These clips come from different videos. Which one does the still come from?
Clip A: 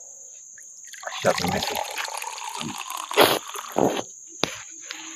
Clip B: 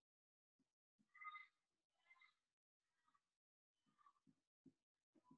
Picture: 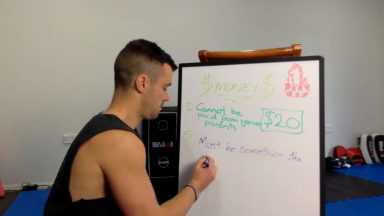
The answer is B